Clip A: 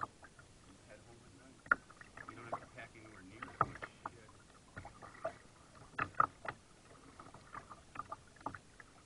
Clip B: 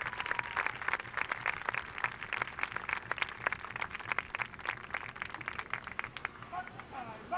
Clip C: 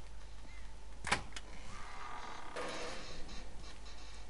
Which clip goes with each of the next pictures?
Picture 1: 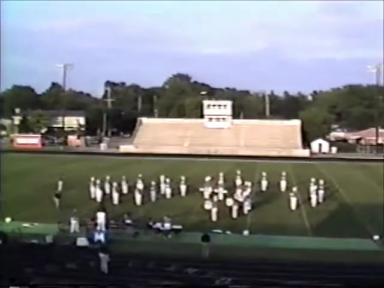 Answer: B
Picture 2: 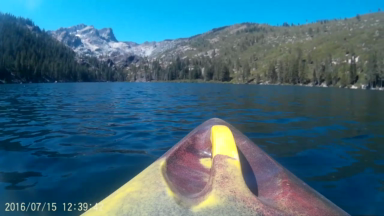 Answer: A